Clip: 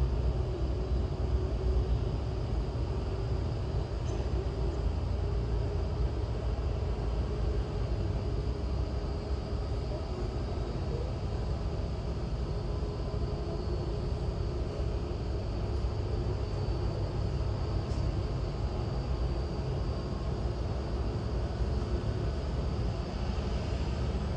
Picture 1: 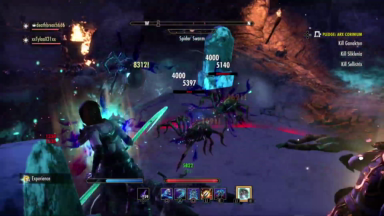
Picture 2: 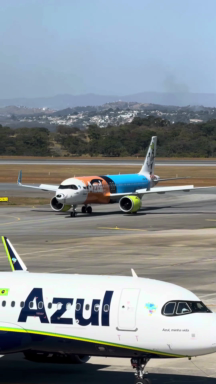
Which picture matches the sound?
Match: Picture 2